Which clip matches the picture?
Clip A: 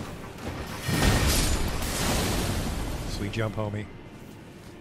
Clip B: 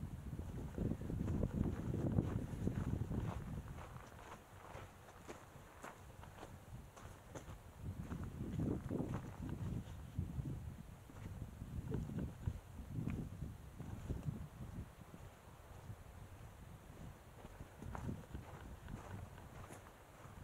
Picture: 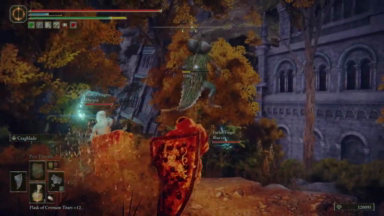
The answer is A